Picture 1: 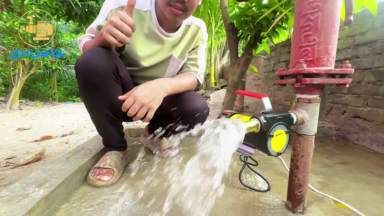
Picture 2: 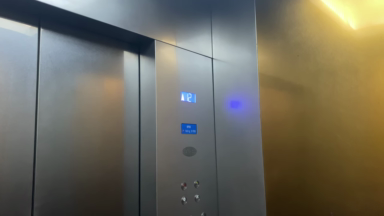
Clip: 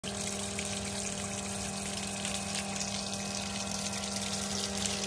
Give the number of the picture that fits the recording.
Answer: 1